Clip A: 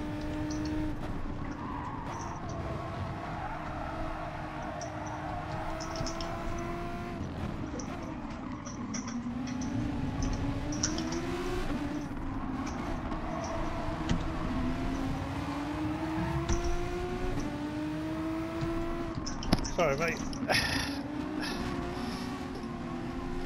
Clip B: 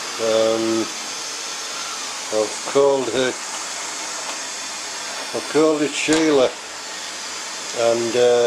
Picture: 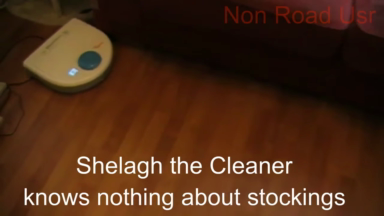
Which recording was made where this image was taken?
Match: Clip B